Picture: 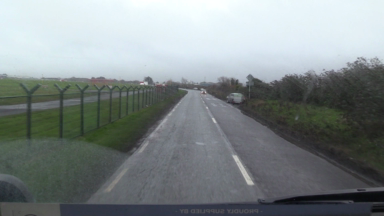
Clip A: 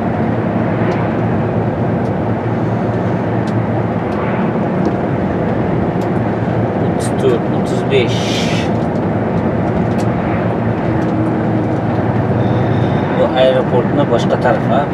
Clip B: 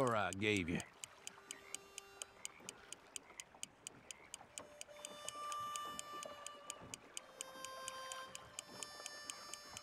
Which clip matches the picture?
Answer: A